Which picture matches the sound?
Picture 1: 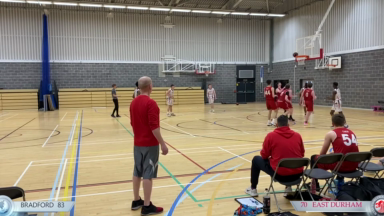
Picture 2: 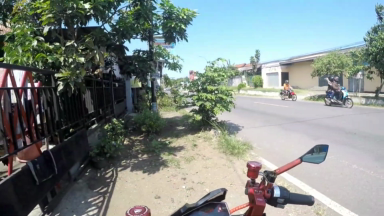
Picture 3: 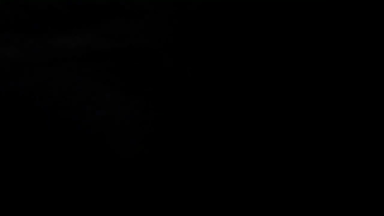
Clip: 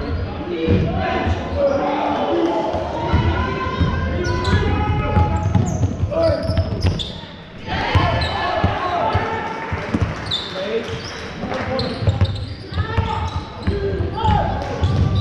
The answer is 1